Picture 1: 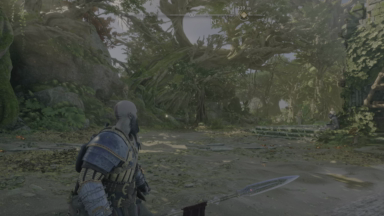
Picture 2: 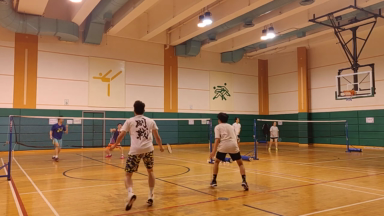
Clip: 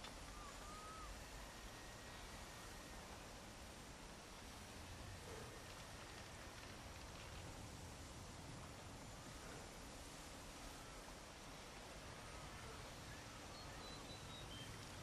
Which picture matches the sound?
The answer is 1